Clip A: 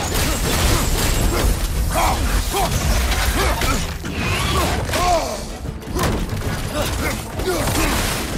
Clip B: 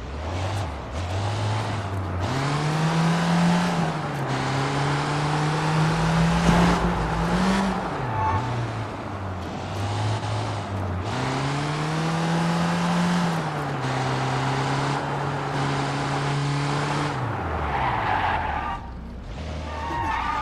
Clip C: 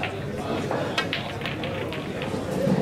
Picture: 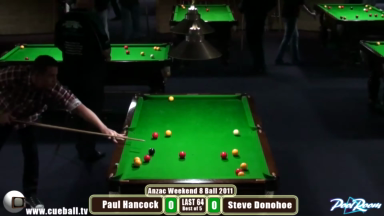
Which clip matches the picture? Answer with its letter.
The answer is C